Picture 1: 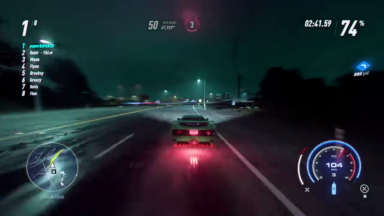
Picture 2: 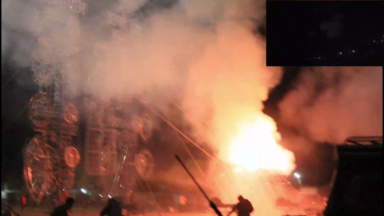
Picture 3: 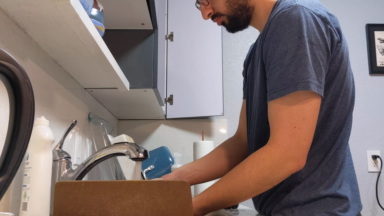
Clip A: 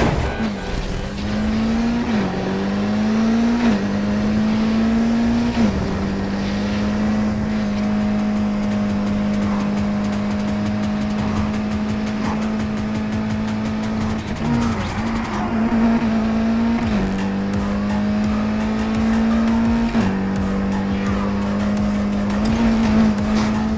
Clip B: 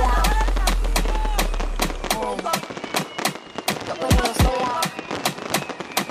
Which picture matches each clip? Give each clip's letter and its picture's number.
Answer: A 1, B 2